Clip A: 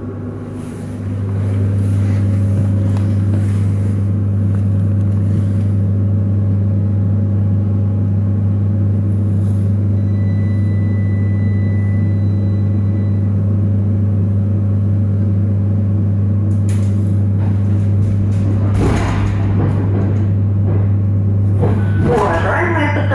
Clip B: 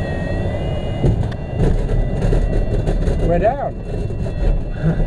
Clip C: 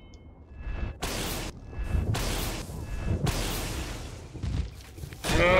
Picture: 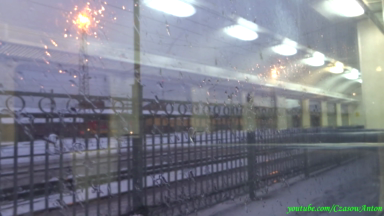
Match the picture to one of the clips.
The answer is A